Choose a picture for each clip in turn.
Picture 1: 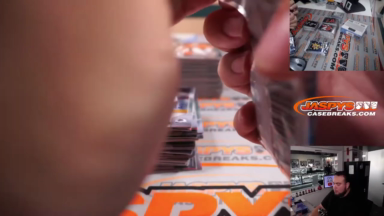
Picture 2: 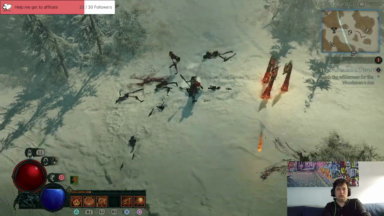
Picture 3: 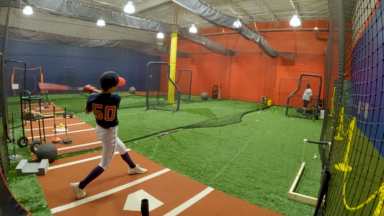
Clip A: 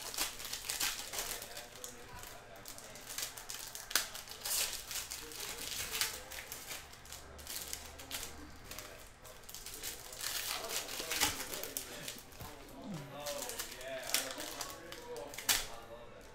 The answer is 1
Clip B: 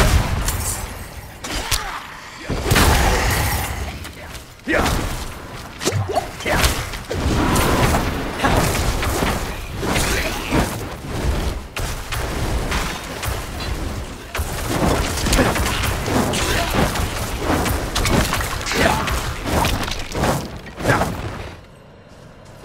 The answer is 2